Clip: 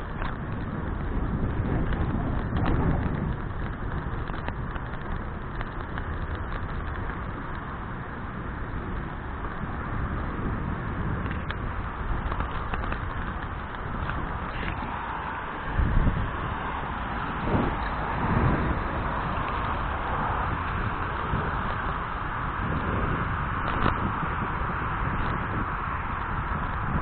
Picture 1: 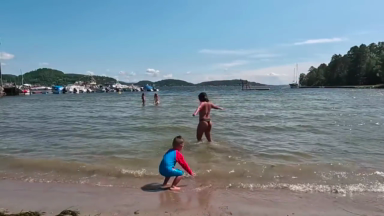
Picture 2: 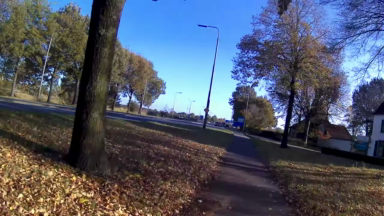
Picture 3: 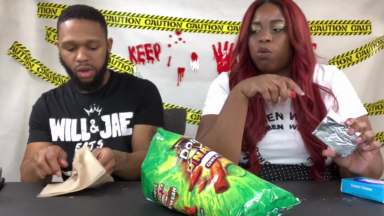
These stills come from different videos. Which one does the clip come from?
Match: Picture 2